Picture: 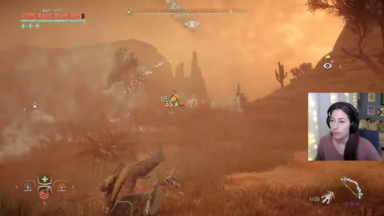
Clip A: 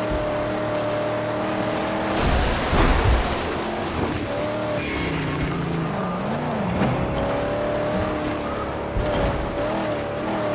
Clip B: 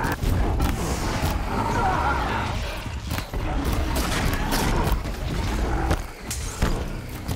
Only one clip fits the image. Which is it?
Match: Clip B